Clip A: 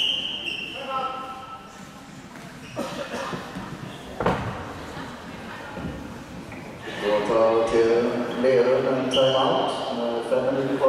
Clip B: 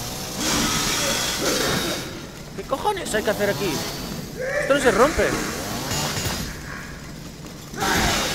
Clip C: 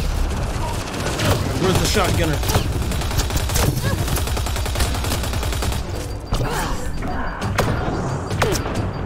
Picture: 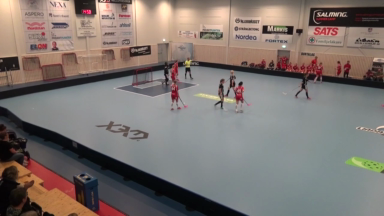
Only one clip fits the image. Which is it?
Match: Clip A